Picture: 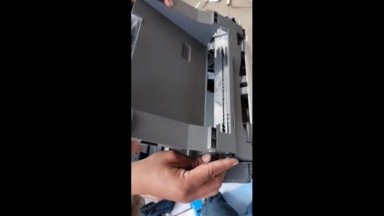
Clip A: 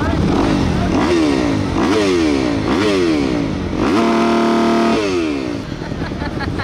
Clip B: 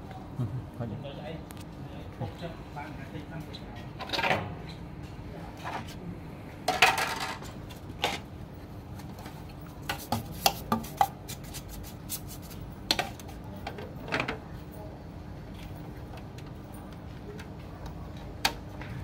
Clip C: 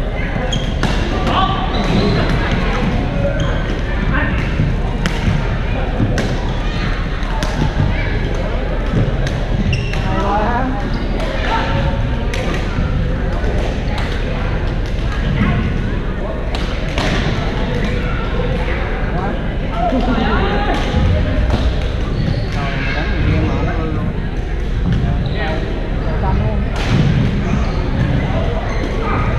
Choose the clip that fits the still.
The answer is B